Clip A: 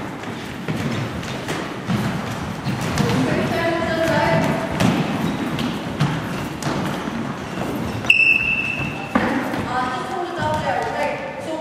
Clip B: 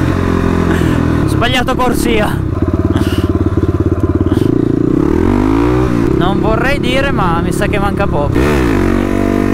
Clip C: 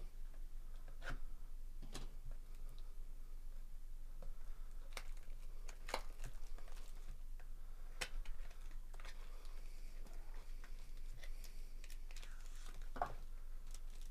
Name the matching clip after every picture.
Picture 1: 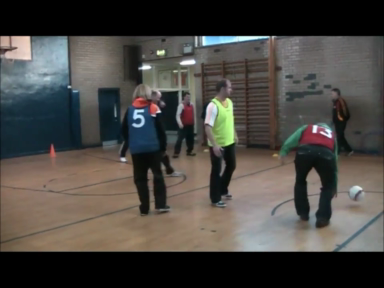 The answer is A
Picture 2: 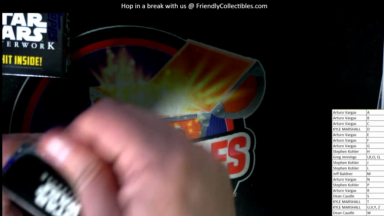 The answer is C